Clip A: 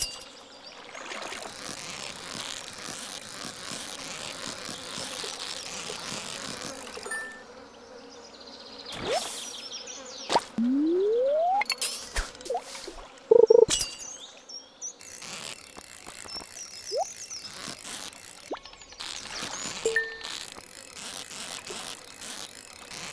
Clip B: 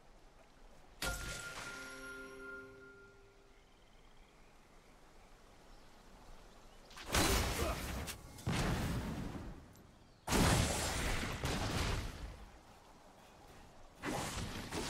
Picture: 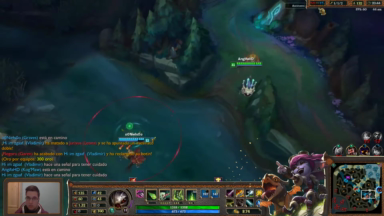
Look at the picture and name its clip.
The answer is B